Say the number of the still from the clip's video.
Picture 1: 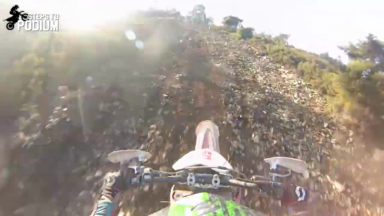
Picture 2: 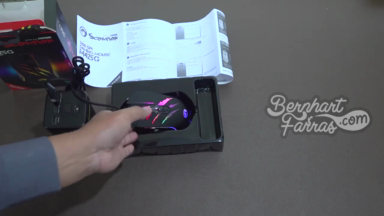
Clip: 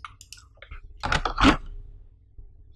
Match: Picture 2